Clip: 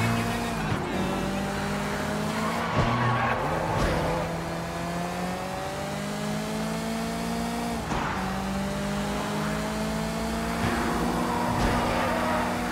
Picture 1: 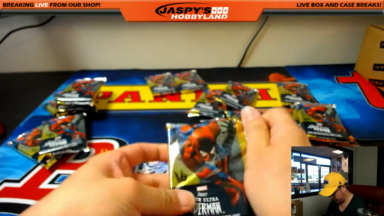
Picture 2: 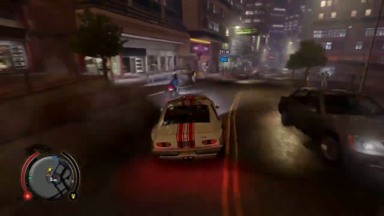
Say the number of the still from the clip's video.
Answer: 2